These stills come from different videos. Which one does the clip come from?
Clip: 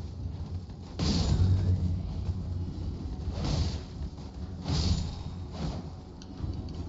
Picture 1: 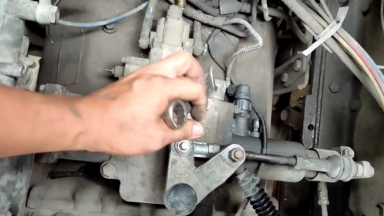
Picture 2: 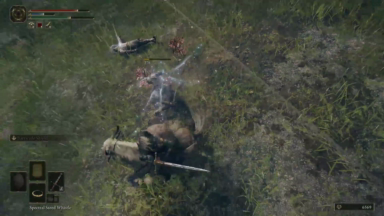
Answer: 2